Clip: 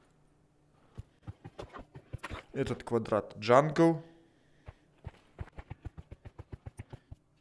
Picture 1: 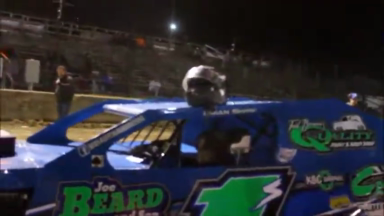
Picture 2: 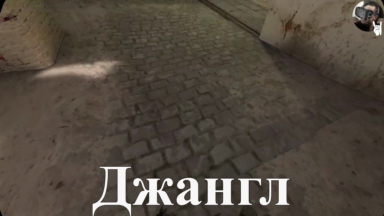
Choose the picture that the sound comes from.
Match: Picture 2